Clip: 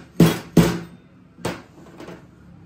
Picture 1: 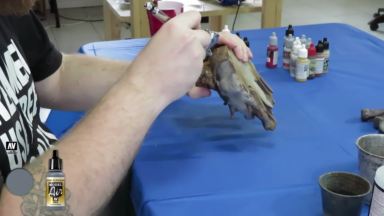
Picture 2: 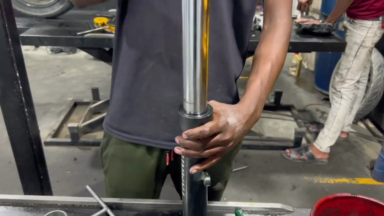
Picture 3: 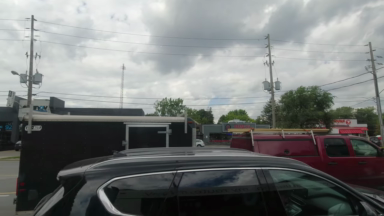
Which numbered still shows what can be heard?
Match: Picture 2